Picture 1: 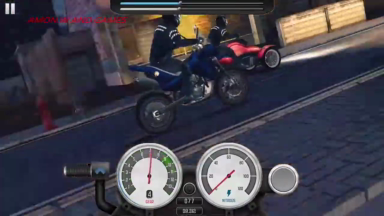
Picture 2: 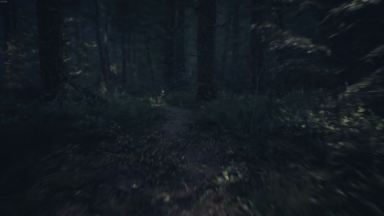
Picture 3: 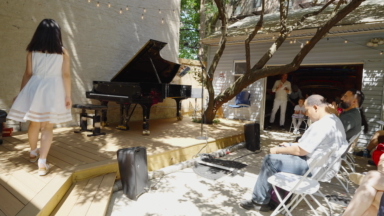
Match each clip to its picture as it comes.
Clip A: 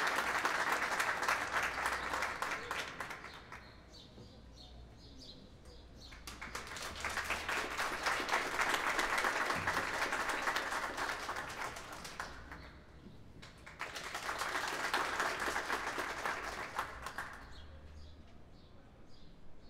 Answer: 3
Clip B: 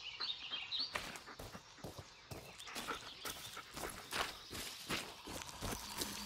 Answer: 2